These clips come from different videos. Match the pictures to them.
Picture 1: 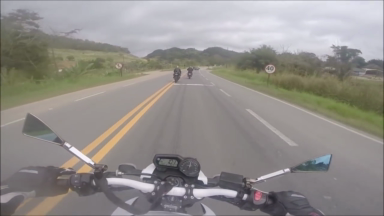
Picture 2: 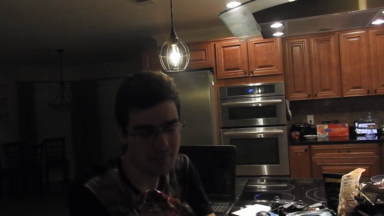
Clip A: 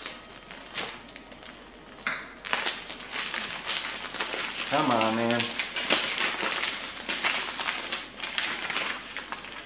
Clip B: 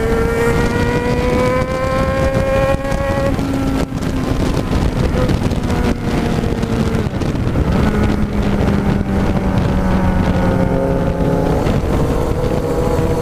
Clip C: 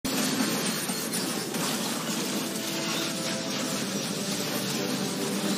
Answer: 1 B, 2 A